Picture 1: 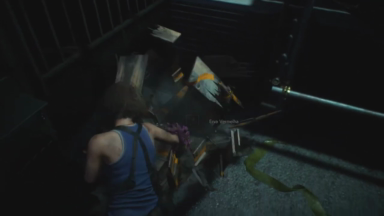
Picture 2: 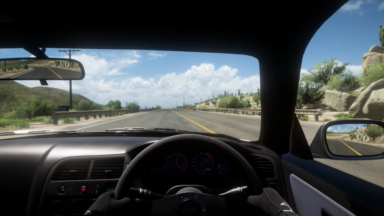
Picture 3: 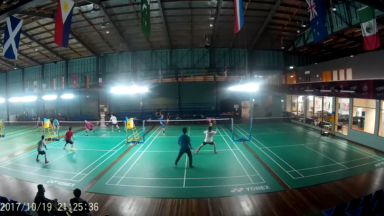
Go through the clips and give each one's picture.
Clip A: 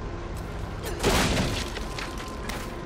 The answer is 1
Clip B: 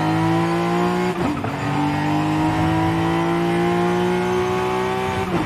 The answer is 2